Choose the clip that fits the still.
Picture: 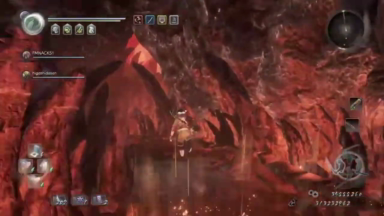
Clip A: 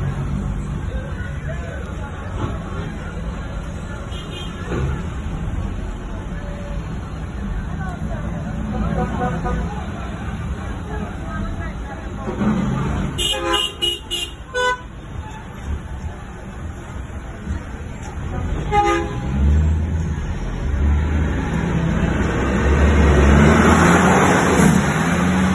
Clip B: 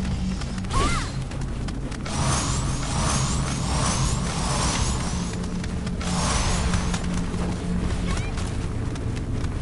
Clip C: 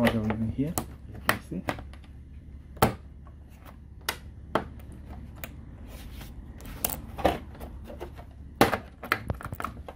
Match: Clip B